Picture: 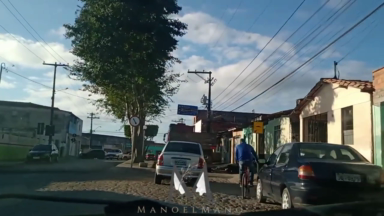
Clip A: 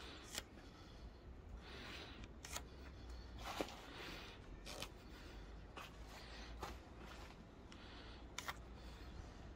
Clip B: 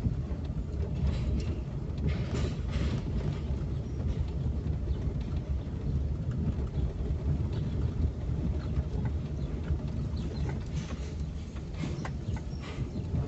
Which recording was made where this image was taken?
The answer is B